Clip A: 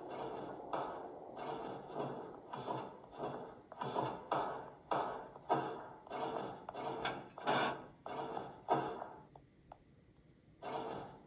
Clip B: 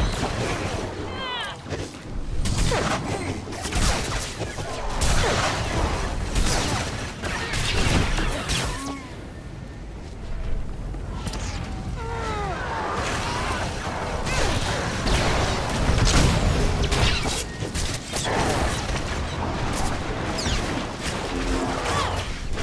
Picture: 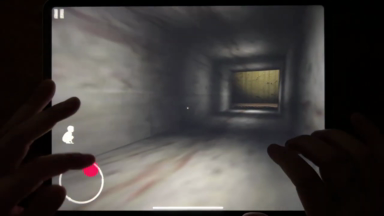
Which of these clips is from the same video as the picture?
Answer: A